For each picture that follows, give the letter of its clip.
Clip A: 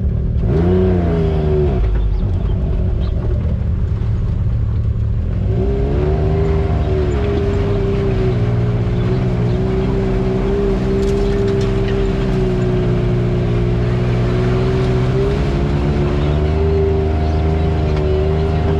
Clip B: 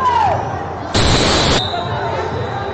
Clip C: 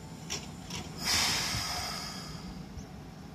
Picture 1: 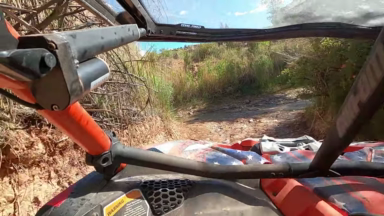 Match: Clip A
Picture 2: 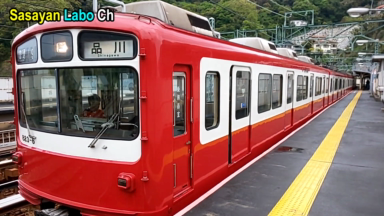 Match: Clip C